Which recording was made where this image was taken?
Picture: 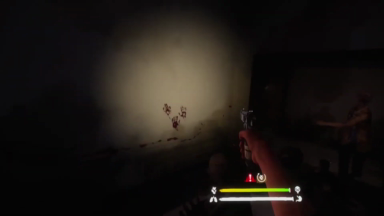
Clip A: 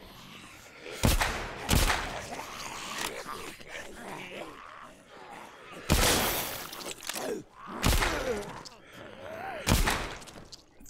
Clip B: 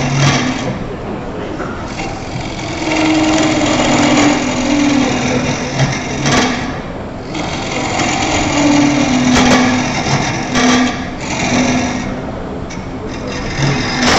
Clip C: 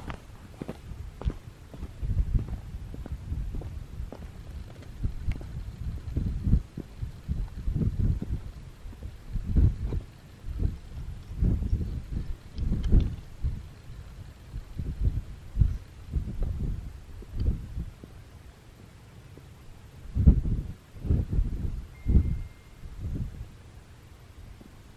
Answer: A